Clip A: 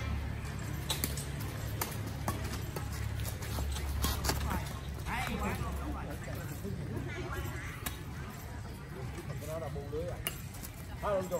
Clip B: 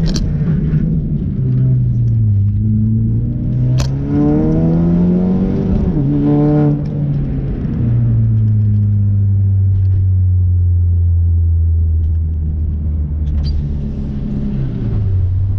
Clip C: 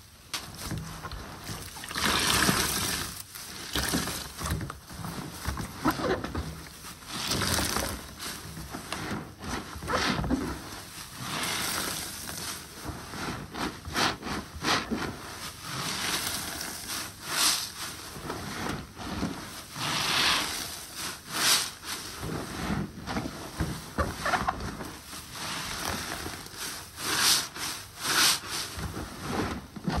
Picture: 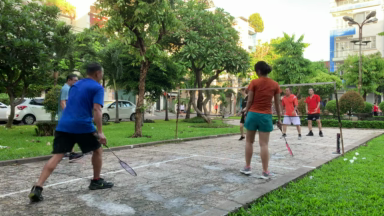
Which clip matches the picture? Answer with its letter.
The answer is A